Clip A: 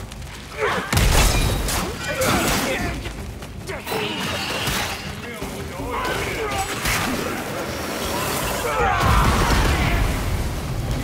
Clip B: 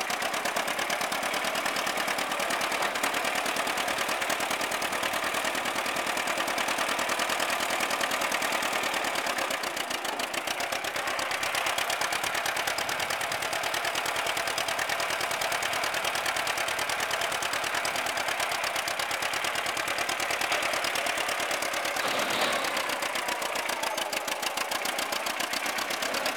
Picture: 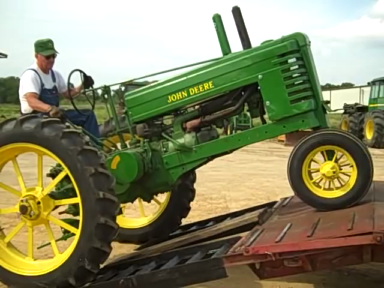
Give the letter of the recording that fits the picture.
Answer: B